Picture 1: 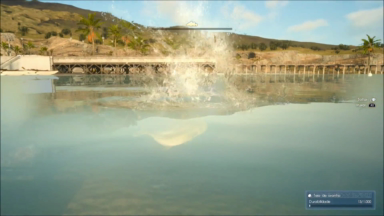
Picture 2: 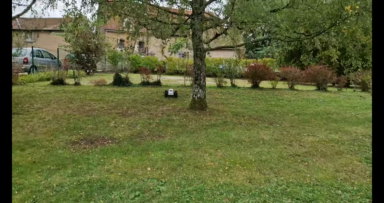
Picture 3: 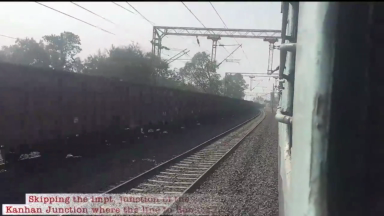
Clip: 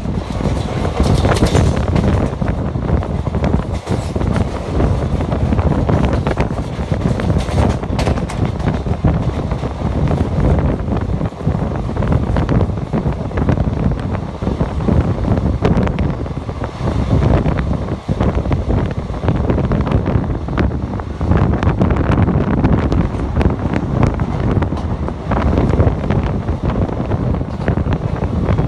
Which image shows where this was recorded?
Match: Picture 3